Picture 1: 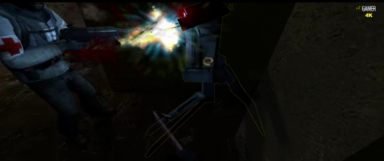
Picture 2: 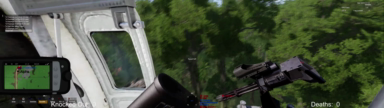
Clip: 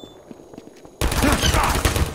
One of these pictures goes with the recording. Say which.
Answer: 1